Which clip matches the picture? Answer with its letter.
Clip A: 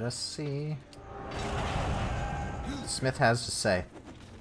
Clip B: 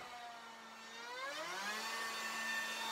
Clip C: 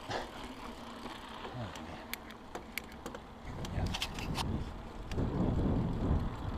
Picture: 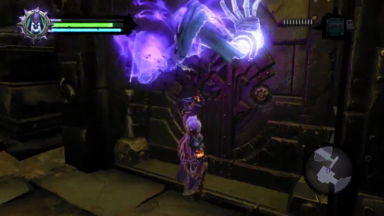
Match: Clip A